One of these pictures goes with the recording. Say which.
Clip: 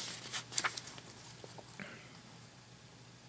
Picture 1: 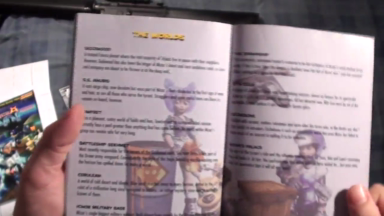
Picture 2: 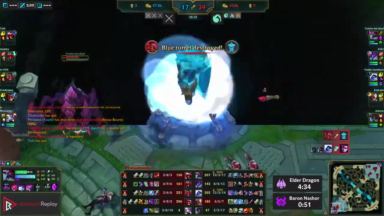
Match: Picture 1